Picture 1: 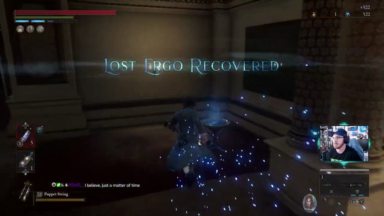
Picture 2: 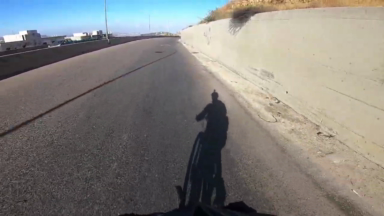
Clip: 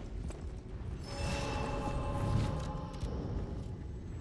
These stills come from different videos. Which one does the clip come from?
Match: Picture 1